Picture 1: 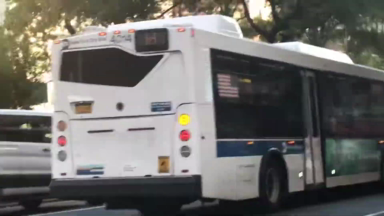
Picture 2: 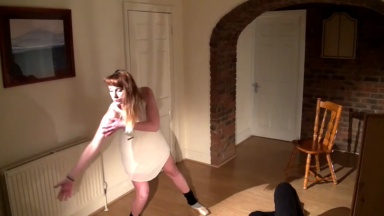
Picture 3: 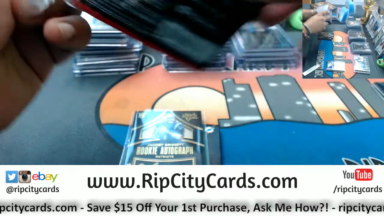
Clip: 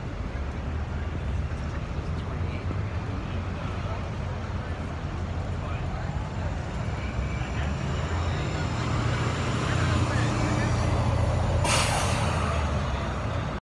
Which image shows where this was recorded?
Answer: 1